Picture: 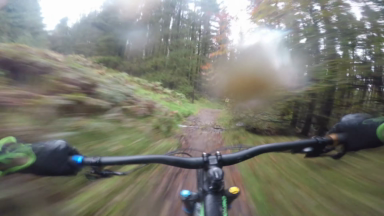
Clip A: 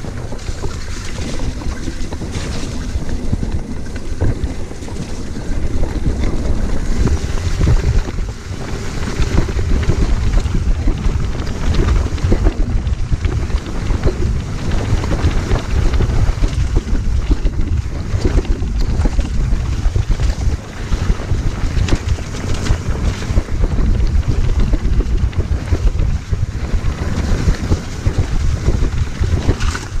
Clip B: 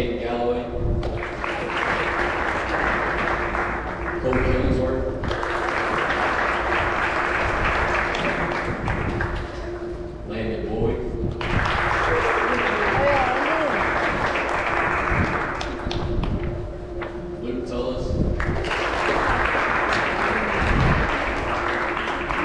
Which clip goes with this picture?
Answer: A